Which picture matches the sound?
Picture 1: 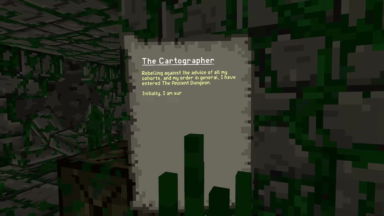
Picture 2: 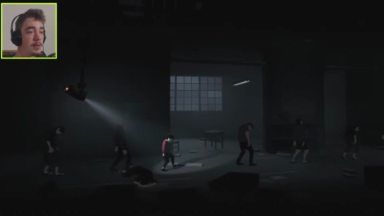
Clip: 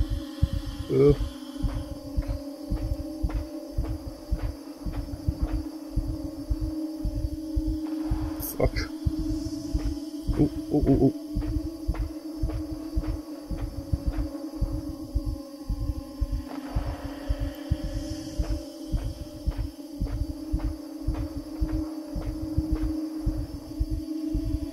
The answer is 2